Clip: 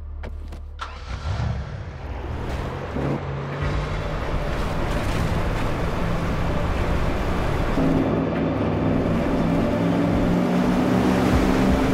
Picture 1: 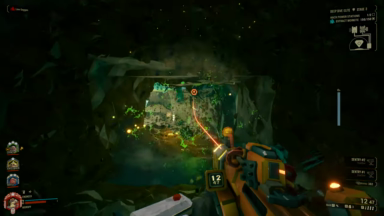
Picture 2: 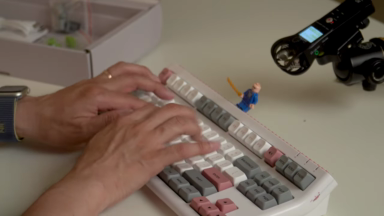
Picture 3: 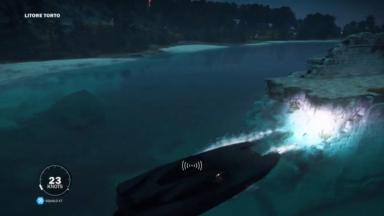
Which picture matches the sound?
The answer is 3